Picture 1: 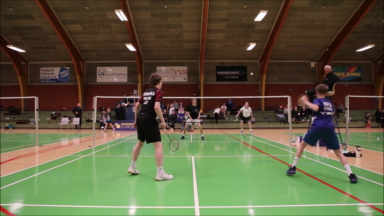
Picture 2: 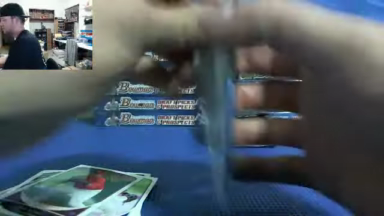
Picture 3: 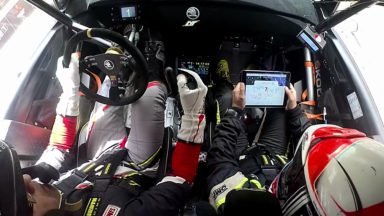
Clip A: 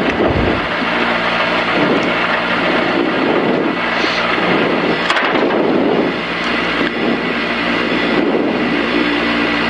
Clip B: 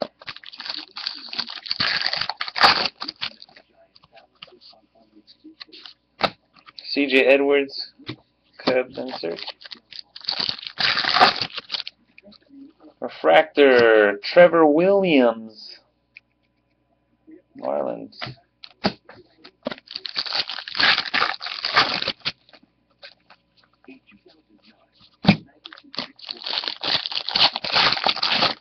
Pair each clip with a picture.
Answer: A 3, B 2